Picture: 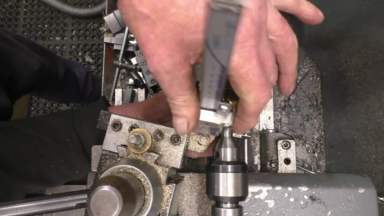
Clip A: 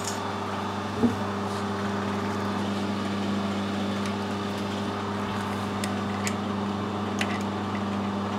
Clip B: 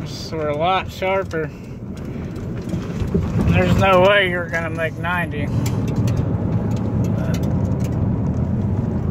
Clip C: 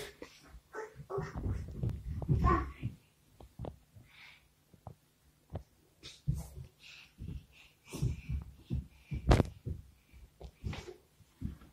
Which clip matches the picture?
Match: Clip A